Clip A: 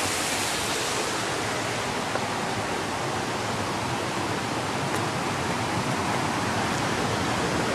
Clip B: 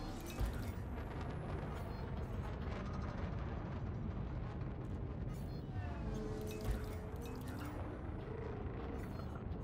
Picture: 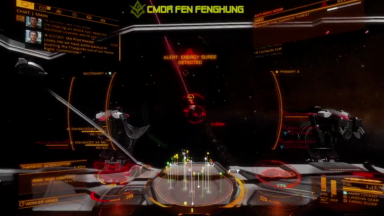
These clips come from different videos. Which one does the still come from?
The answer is B